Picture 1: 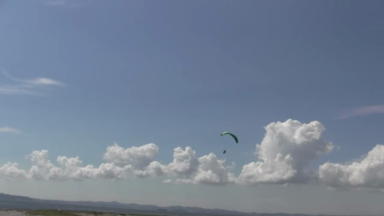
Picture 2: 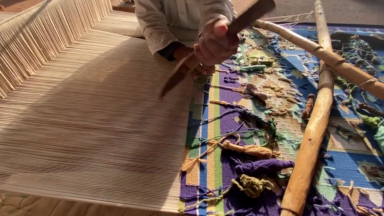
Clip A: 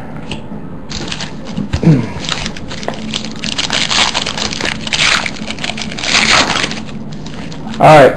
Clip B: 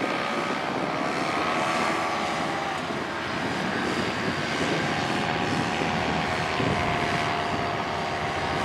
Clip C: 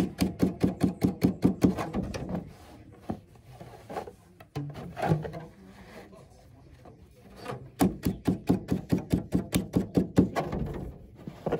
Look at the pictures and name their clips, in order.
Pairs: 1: B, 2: C